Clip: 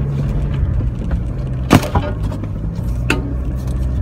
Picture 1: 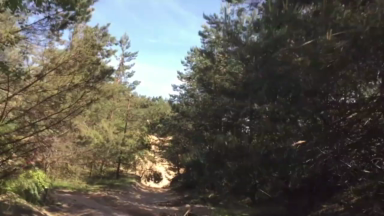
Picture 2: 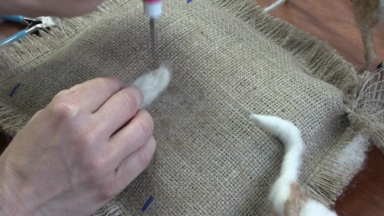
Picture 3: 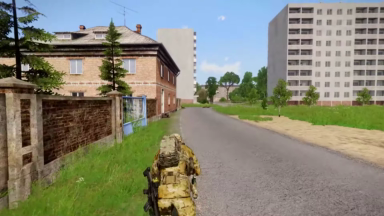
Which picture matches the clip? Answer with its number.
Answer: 1